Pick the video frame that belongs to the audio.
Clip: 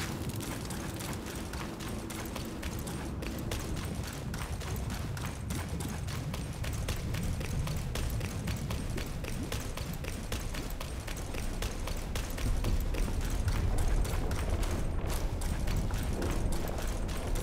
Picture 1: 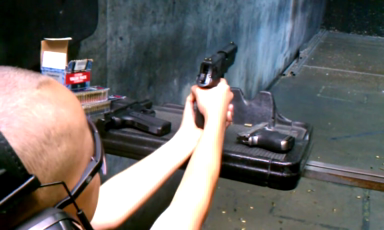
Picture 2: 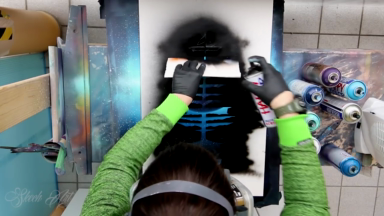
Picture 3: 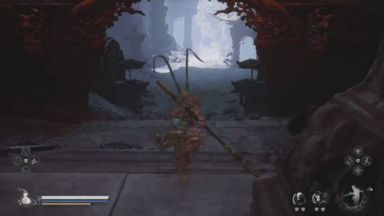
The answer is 3